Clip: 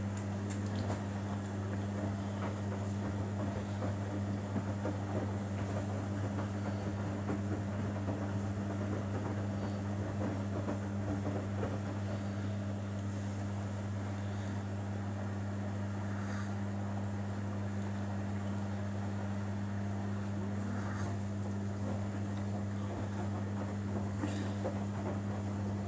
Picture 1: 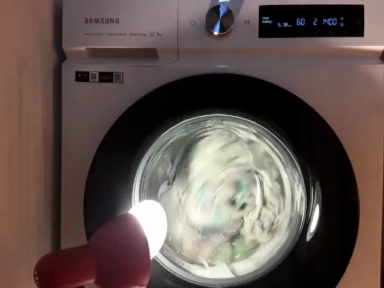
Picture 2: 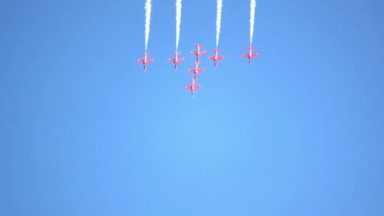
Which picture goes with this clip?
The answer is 1